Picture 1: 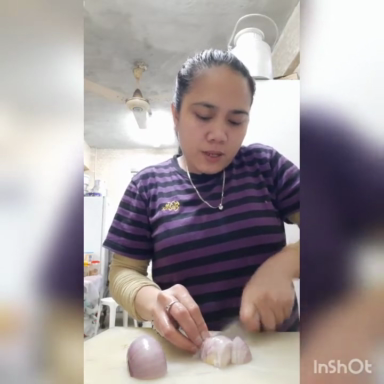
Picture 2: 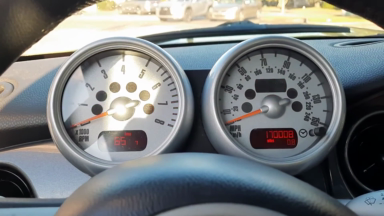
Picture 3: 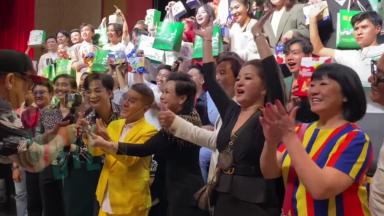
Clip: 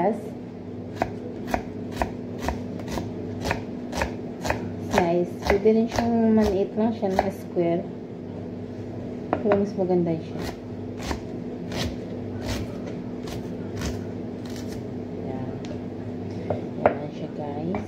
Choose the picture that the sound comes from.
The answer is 1